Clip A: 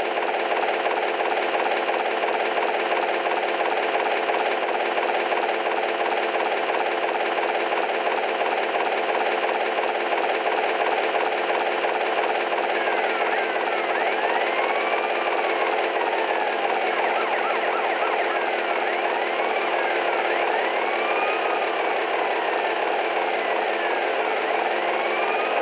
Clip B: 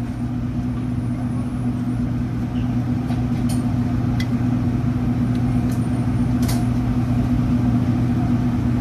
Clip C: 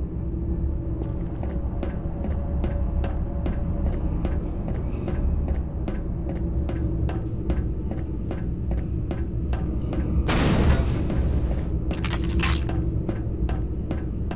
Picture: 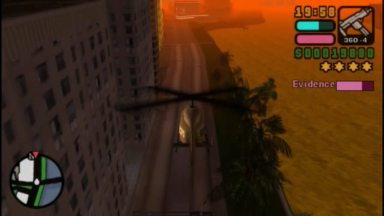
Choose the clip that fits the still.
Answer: A